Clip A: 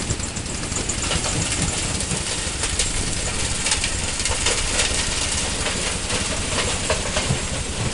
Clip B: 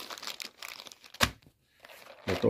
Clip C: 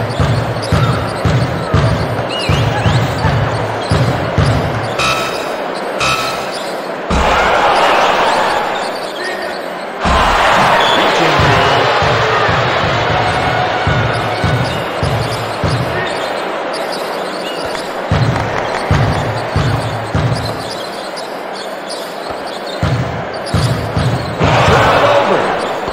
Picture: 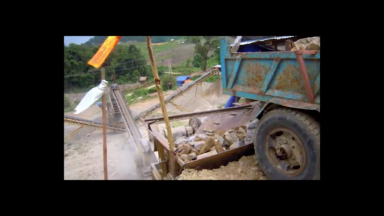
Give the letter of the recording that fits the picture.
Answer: A